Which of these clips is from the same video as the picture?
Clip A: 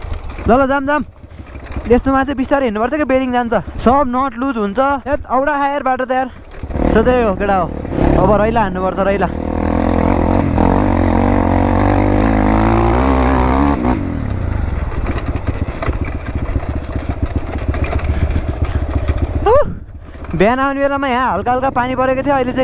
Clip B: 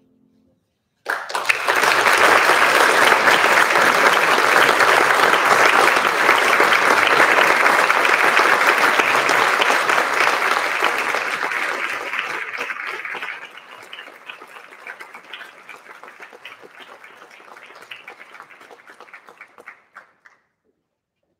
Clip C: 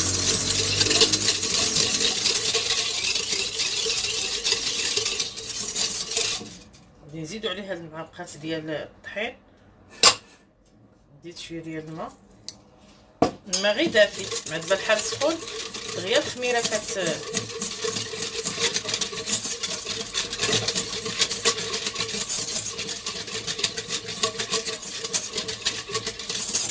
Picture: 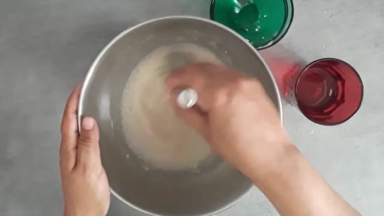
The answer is C